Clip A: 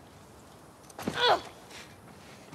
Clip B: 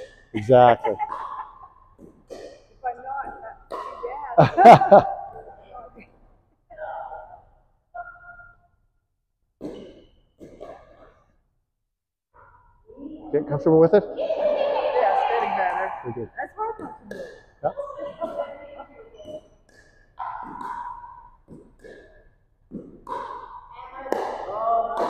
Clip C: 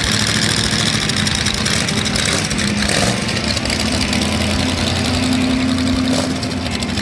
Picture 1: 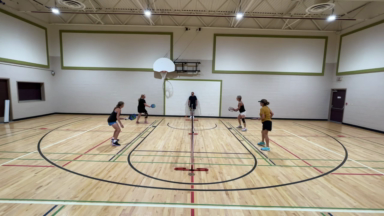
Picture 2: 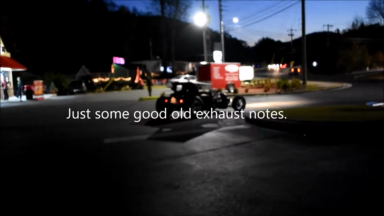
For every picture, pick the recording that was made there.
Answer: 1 B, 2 C